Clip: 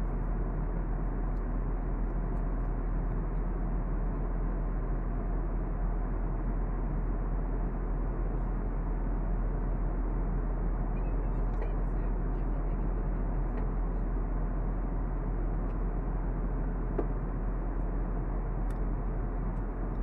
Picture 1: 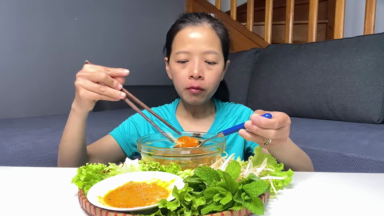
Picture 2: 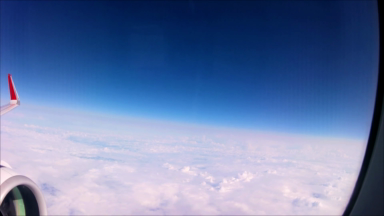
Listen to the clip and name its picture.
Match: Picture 2